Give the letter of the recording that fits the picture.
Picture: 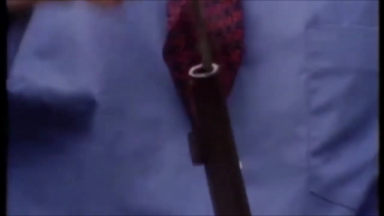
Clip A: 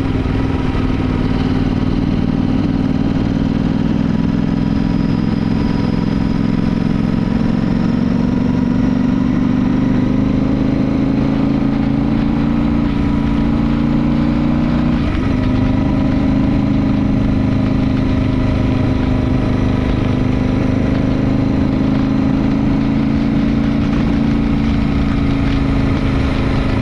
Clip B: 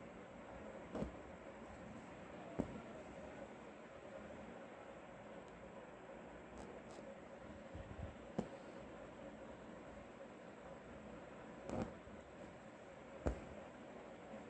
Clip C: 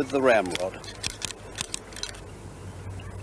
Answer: C